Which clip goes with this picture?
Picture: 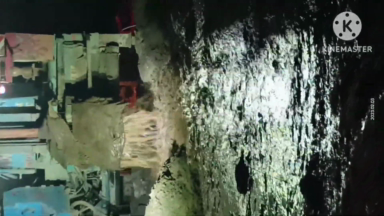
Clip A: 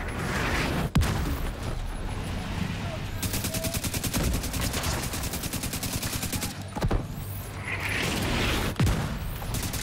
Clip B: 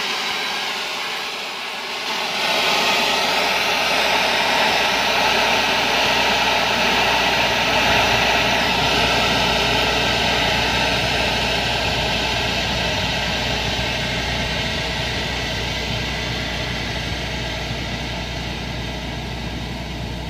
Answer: B